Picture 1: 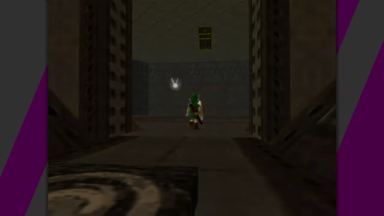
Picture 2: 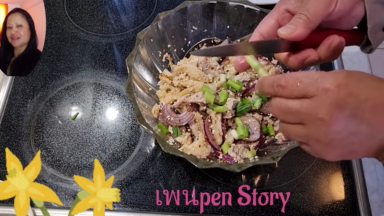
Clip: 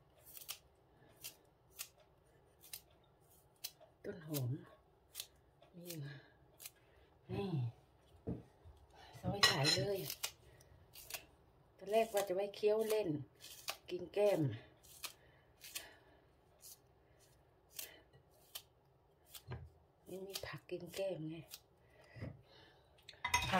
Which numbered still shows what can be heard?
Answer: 2